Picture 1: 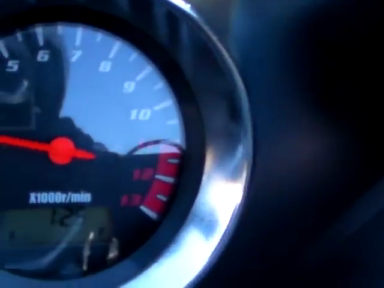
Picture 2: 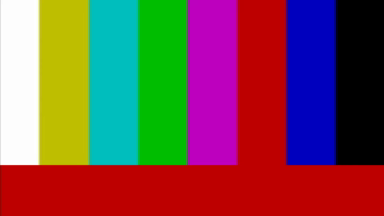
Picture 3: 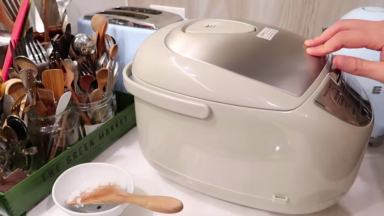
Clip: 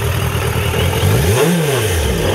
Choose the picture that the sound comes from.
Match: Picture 1